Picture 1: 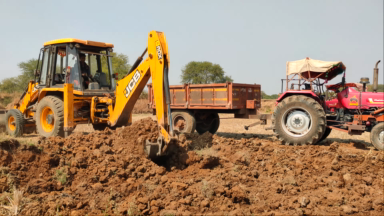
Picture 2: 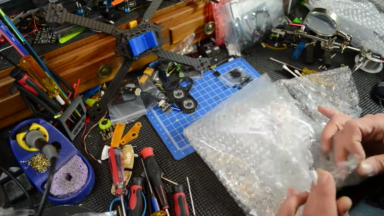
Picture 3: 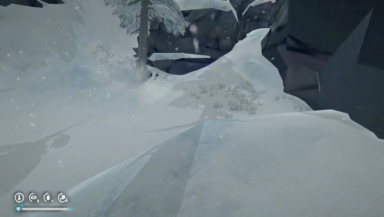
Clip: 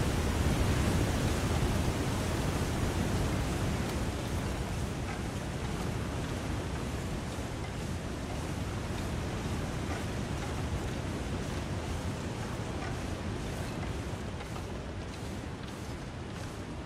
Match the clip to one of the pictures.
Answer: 3